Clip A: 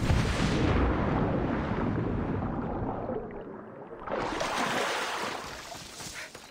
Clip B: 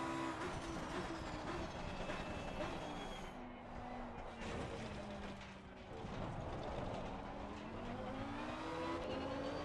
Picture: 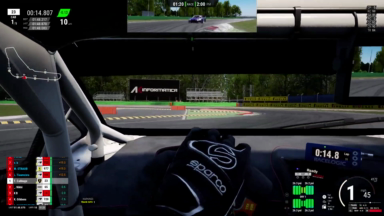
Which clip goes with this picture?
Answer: B